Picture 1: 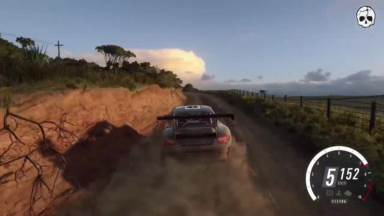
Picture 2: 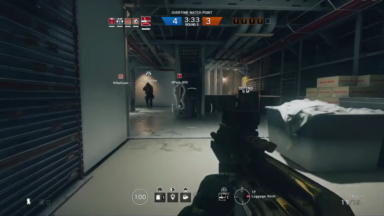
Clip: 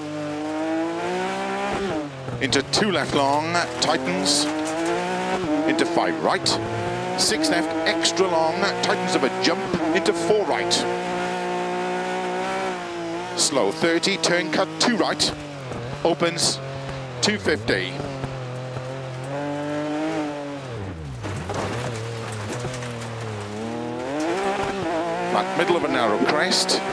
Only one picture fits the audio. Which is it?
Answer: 1